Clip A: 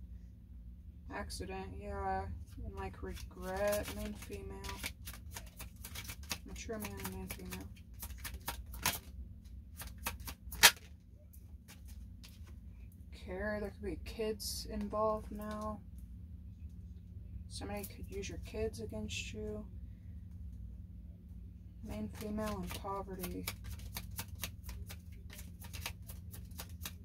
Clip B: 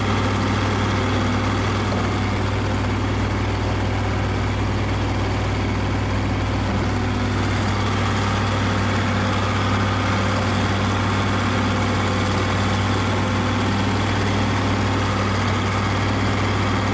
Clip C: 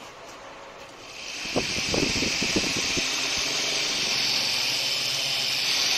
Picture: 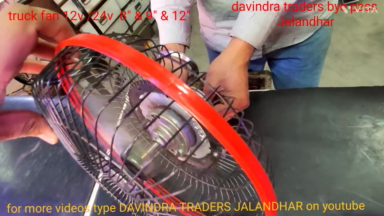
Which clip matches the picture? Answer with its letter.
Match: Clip C